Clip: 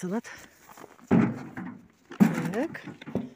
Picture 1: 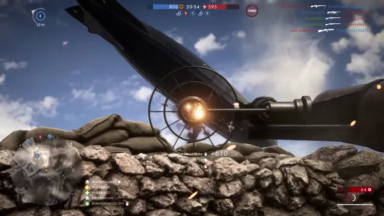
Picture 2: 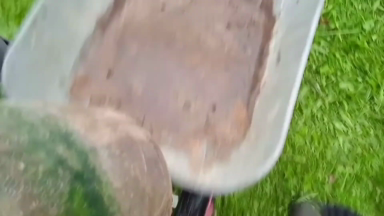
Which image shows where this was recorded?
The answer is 2